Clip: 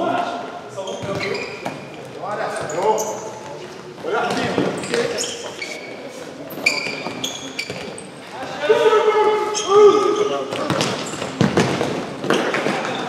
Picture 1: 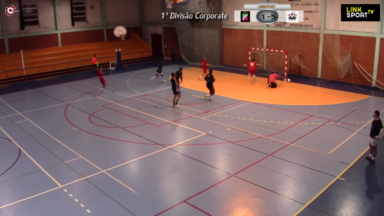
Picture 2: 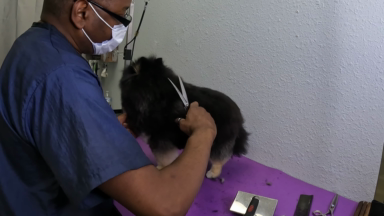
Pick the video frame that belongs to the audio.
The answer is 1